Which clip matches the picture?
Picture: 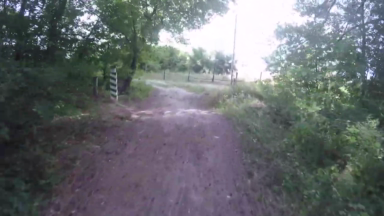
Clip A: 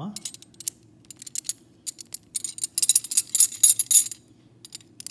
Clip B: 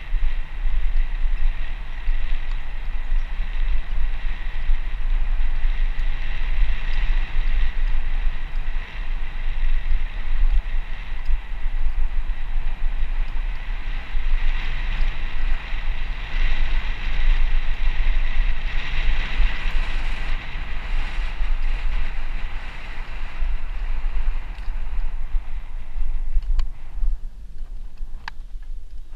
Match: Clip B